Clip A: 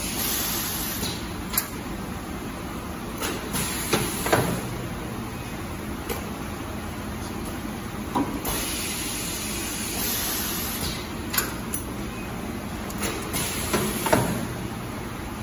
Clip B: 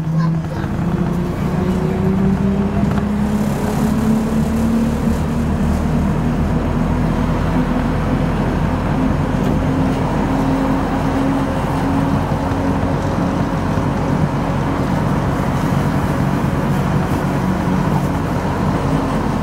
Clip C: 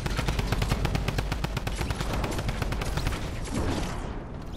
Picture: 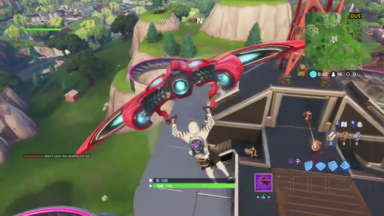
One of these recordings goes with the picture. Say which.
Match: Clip C